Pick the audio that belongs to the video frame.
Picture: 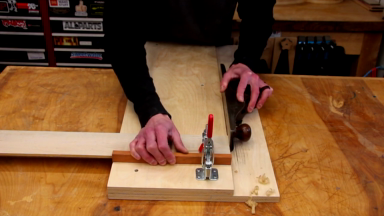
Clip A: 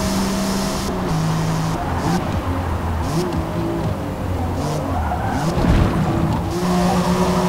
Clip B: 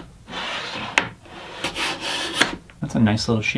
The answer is B